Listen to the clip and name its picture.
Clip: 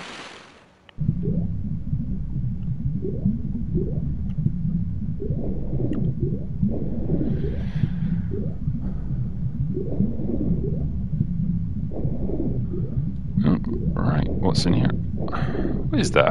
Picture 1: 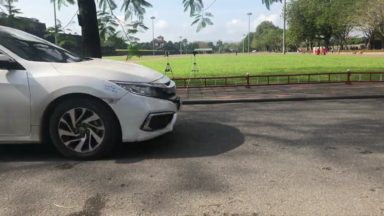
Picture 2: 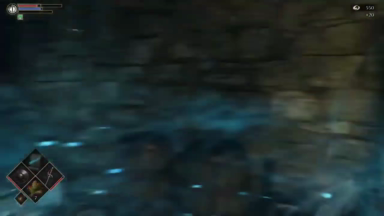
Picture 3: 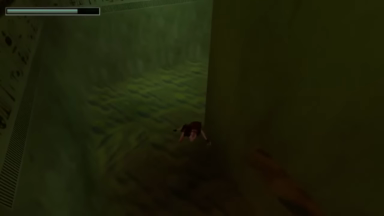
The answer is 3